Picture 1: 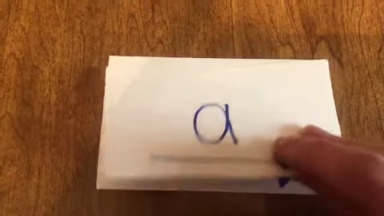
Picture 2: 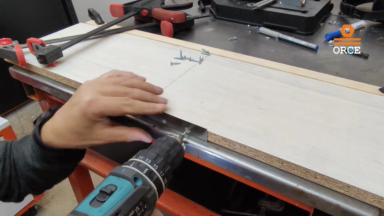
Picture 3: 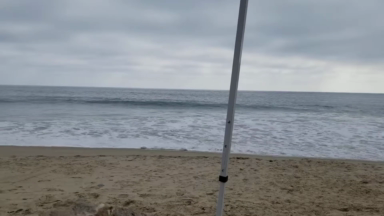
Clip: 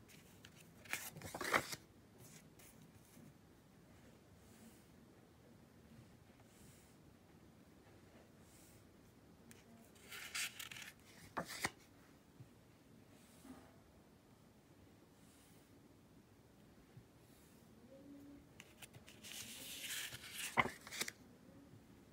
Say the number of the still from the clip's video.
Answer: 1